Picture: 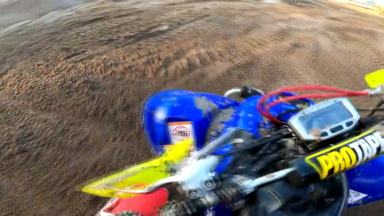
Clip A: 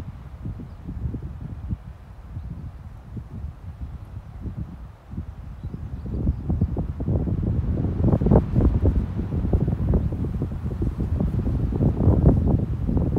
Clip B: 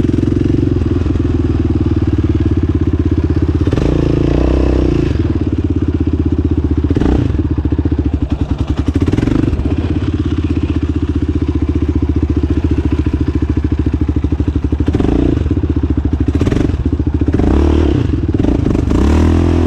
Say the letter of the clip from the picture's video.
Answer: B